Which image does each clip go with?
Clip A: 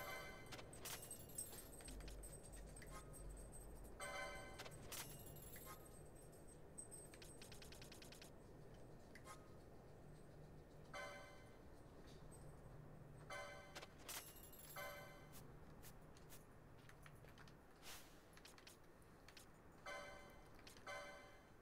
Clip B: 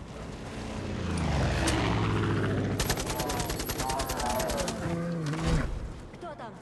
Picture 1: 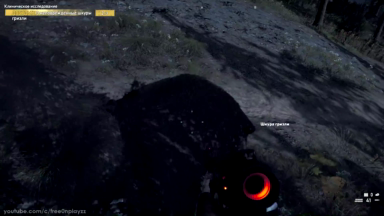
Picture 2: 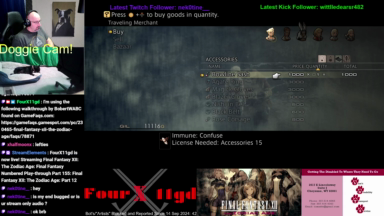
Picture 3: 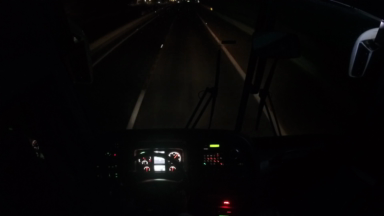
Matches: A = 2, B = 1